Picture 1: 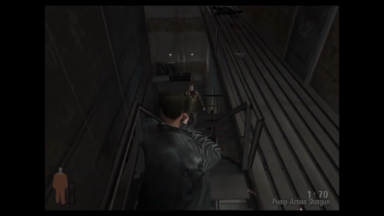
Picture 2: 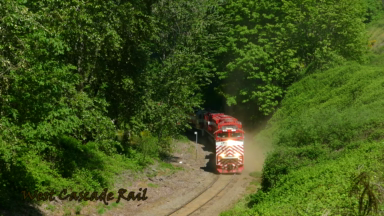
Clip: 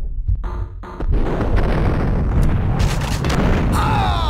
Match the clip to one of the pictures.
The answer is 1